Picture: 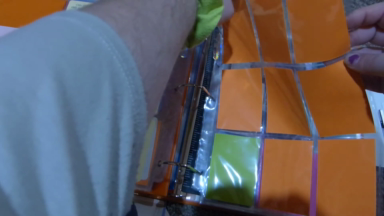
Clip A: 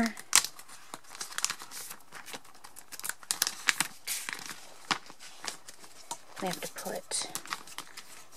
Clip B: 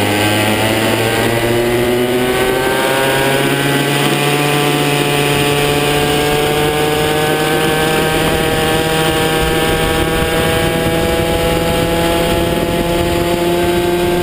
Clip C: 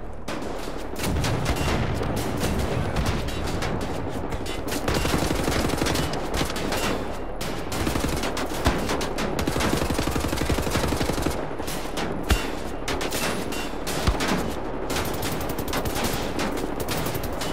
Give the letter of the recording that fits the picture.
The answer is A